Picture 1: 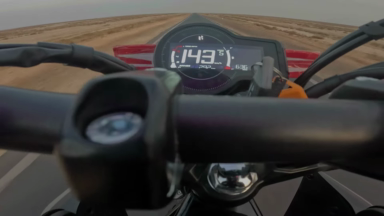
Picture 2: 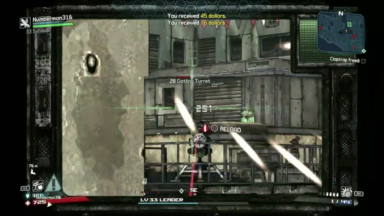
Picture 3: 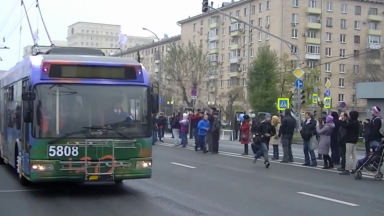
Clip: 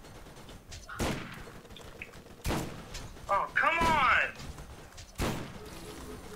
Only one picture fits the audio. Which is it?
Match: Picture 2